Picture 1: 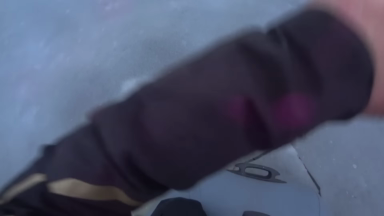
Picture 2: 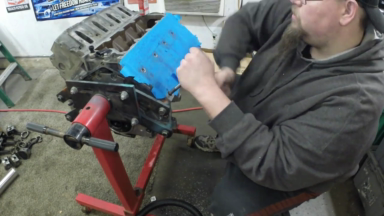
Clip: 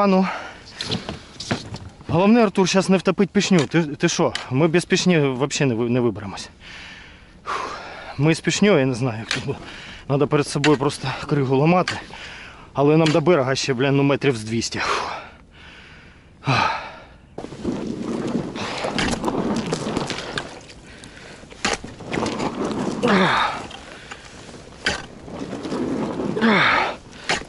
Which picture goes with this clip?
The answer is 1